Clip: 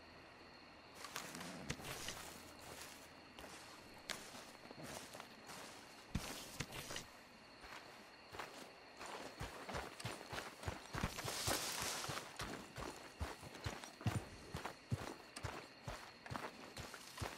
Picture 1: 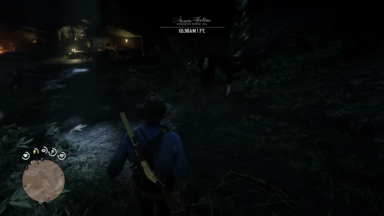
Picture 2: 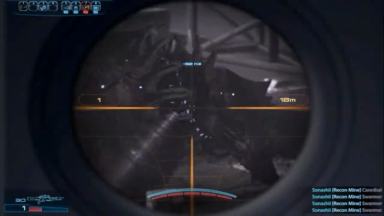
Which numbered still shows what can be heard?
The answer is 1